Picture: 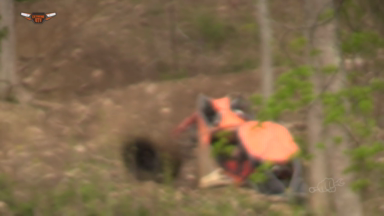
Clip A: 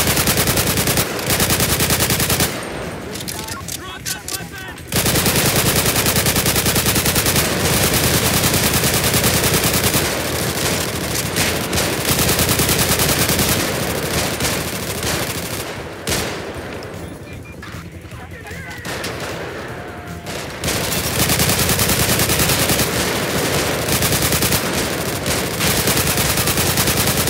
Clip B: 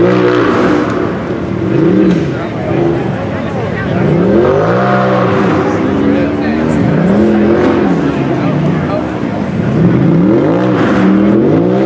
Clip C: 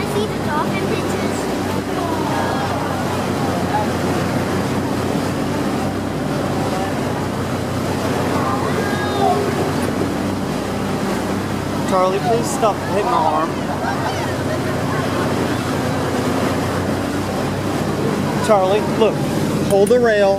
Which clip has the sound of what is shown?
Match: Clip B